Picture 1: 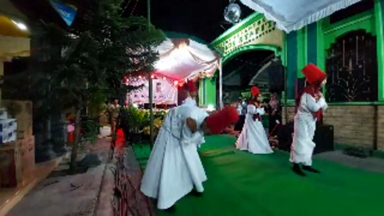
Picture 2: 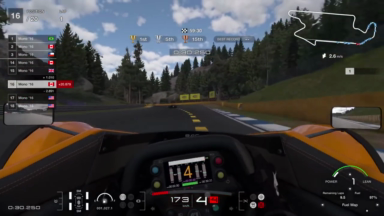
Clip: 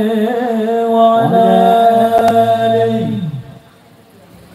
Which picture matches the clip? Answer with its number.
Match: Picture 1